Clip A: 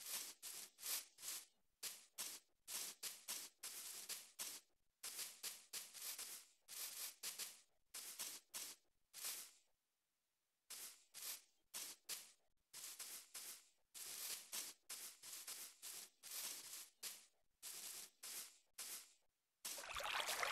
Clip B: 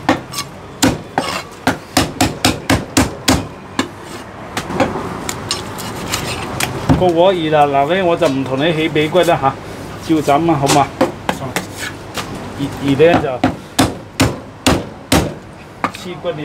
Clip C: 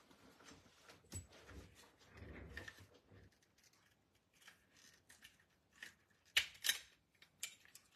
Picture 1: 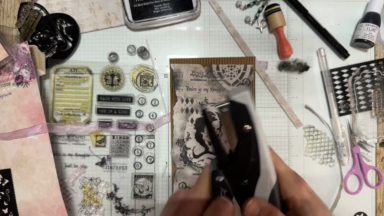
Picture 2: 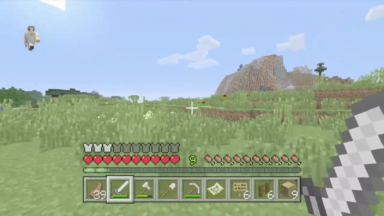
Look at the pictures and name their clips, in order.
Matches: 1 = C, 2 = A